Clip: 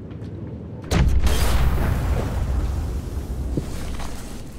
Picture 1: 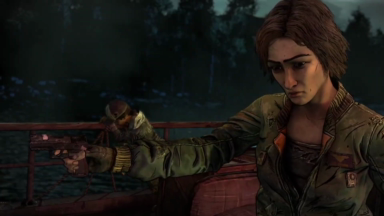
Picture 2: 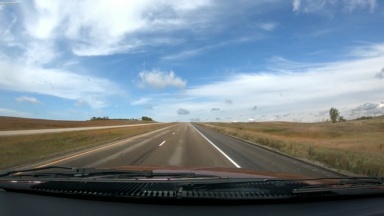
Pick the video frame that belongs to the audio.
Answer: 1